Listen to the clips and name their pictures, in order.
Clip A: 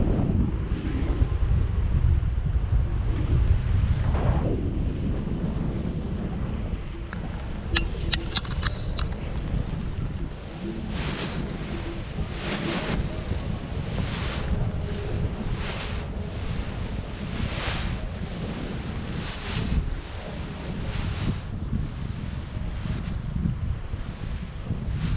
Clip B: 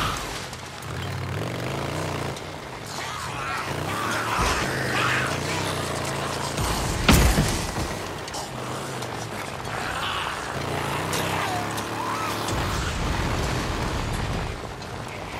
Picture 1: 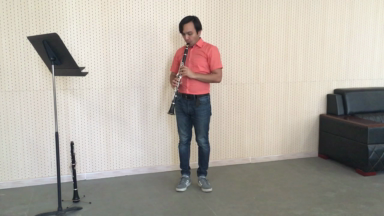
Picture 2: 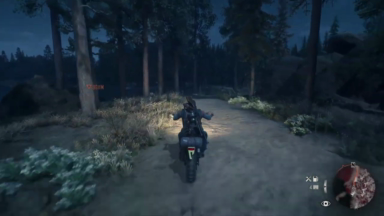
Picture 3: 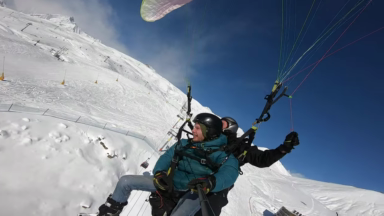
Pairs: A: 3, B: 2